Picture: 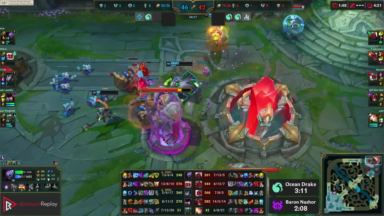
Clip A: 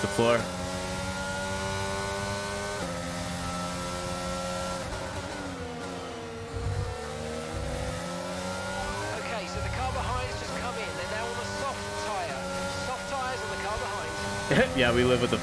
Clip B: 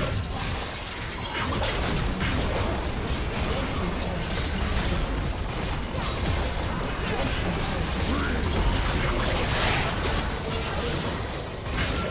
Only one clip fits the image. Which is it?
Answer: B